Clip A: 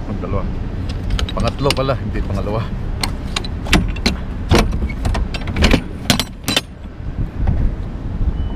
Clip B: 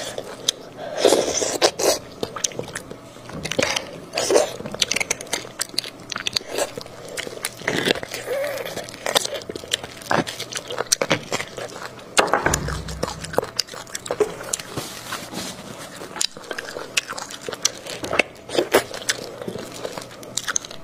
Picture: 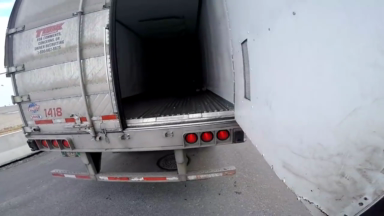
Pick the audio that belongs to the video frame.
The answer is A